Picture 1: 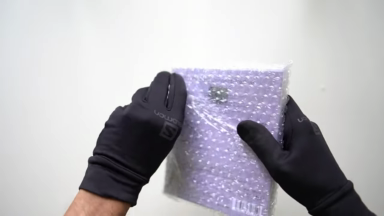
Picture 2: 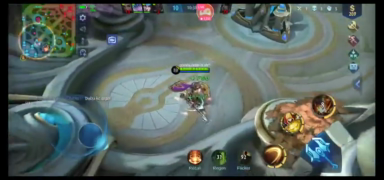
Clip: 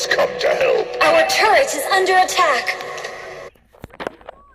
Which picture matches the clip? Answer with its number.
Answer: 2